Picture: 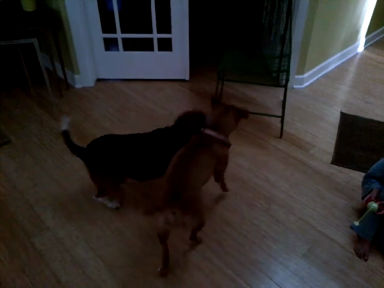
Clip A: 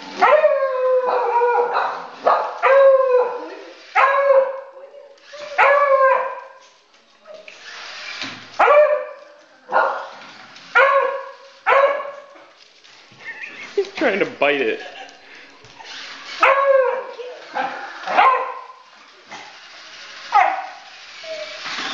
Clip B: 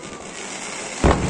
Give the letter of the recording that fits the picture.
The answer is A